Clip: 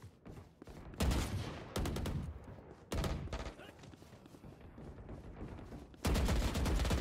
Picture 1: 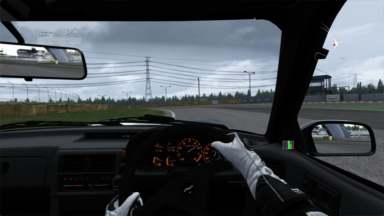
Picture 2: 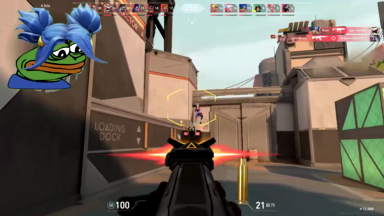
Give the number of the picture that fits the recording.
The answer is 2